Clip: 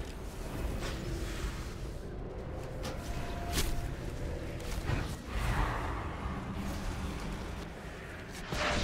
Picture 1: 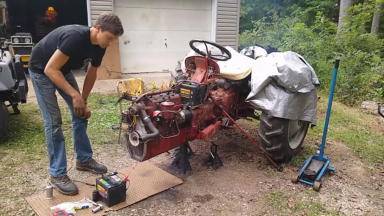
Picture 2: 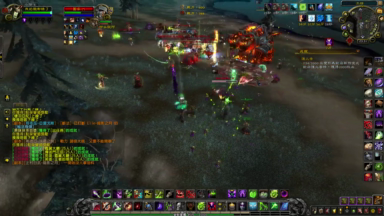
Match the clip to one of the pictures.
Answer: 2